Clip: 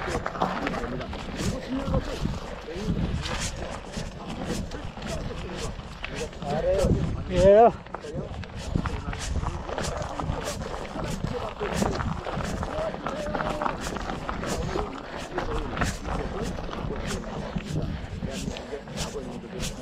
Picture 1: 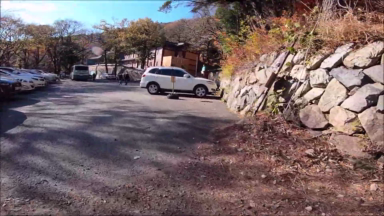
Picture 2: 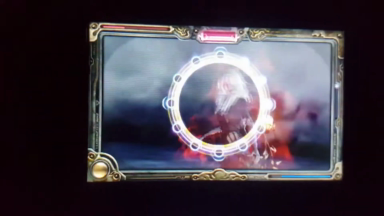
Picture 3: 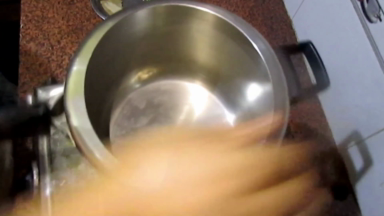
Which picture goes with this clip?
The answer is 1